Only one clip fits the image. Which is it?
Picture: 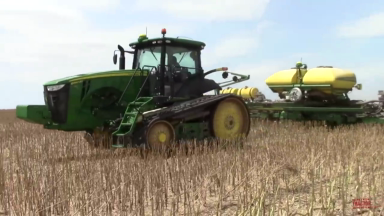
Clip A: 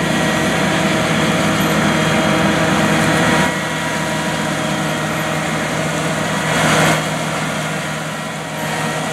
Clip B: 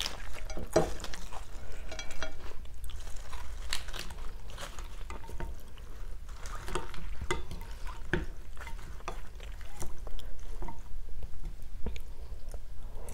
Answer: A